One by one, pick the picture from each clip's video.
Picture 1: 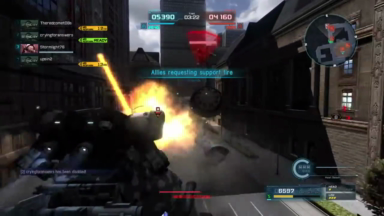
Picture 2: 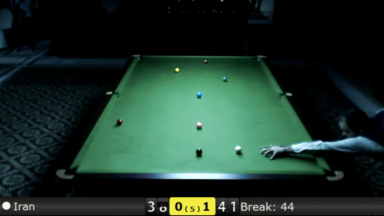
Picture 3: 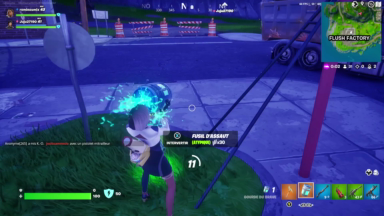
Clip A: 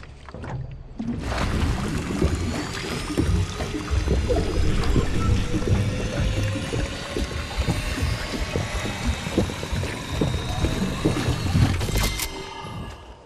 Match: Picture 3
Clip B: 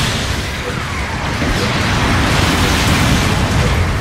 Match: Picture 1